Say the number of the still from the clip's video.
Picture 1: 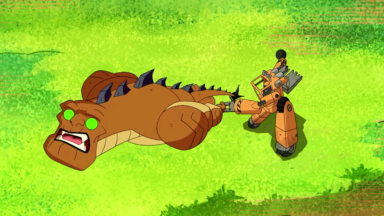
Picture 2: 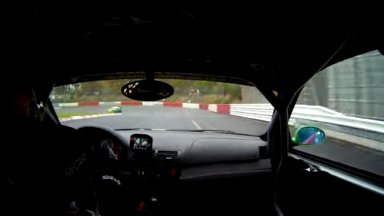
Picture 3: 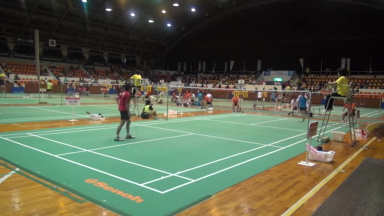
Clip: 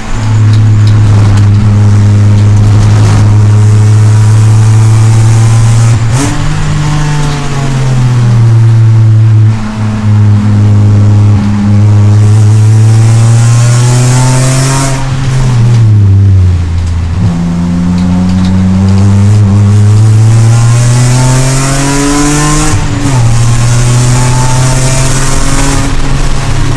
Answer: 2